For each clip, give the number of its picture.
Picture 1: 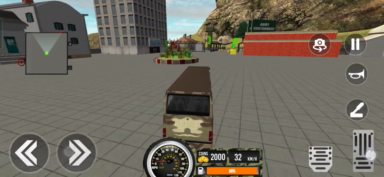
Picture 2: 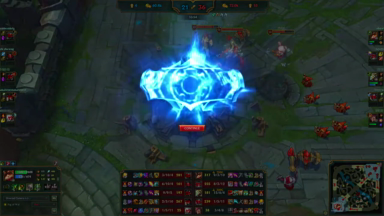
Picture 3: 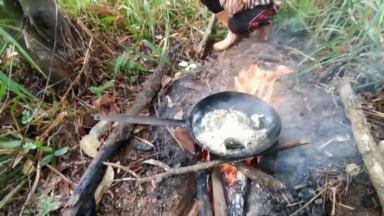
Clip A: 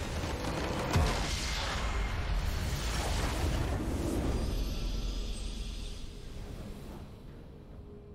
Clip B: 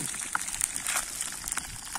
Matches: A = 2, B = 3